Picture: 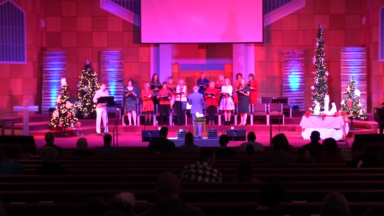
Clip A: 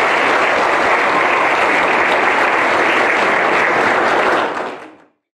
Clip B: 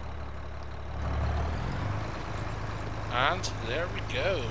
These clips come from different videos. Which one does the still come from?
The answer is A